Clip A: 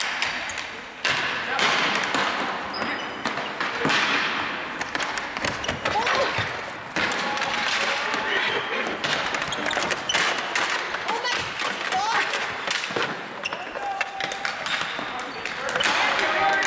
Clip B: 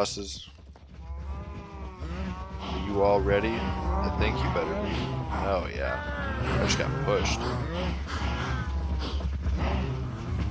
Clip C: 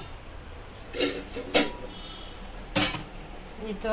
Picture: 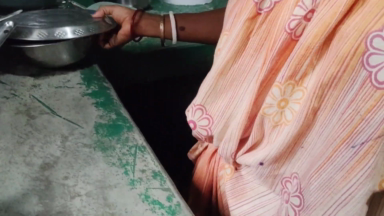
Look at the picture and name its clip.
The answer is C